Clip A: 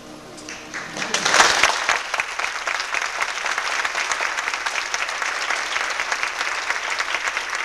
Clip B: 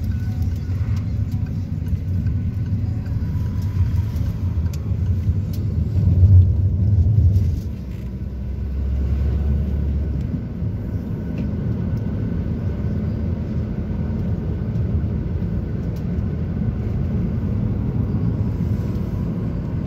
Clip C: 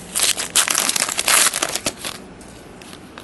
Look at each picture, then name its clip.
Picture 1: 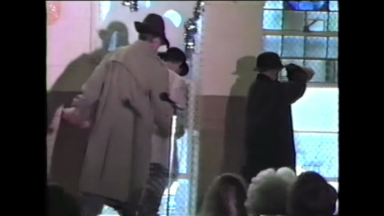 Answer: A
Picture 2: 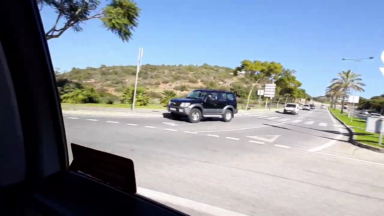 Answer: B